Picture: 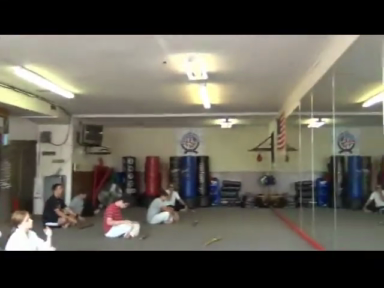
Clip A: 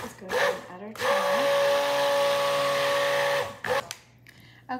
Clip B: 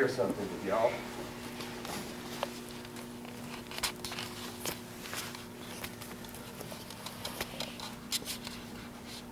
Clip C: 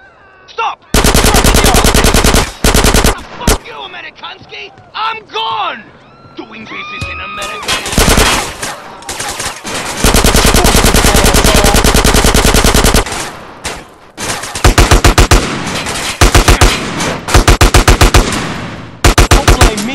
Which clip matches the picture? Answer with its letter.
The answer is B